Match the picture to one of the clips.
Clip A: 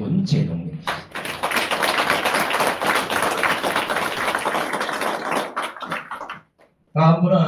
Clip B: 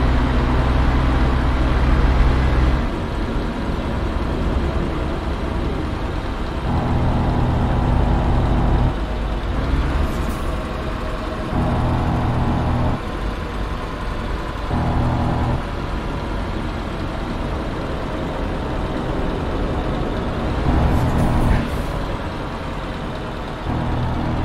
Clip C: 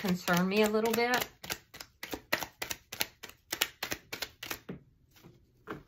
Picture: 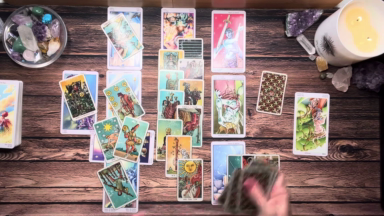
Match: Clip C